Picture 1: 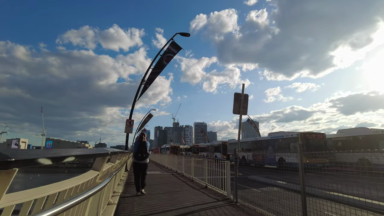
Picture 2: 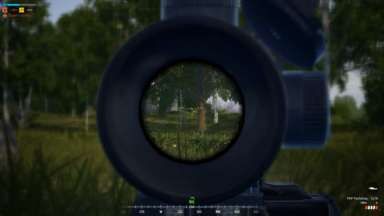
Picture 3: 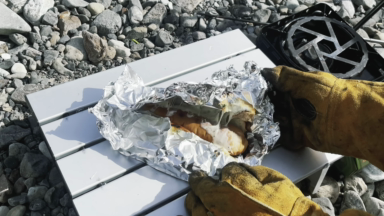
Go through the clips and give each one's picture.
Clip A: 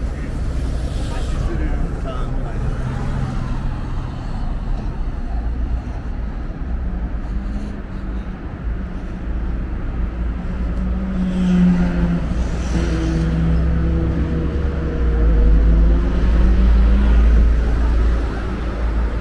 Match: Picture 1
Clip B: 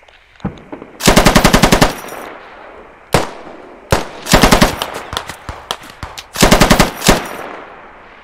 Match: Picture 2